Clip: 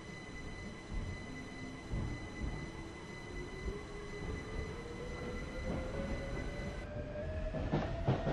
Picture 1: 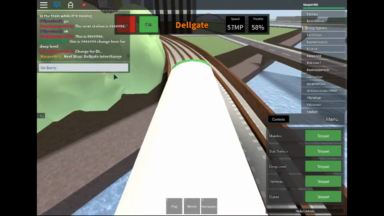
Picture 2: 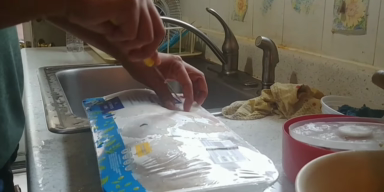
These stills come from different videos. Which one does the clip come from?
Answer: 1